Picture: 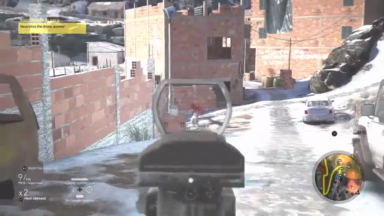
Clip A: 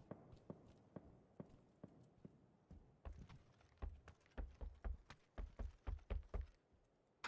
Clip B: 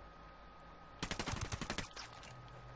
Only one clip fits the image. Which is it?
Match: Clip B